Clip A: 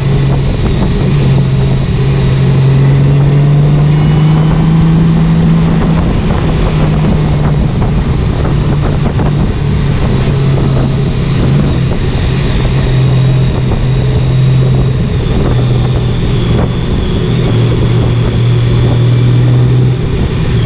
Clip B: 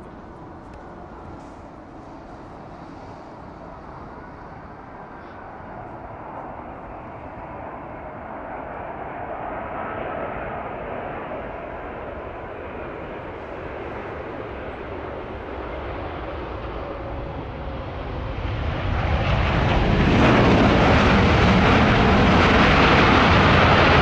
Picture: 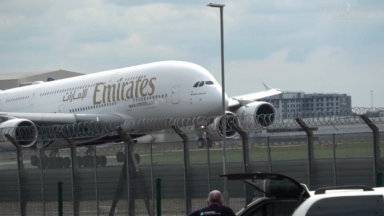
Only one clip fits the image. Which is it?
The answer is B